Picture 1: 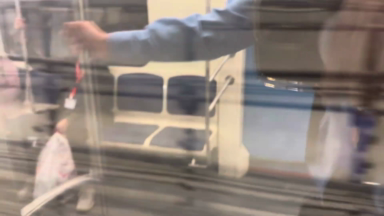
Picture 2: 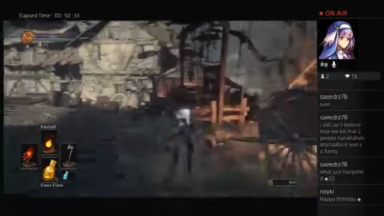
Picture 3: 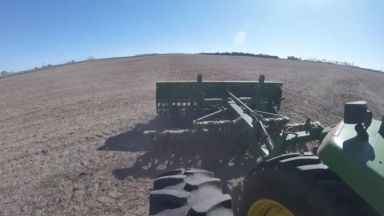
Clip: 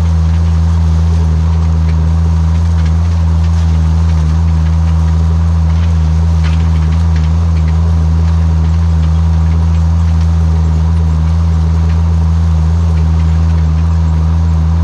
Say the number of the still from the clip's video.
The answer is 3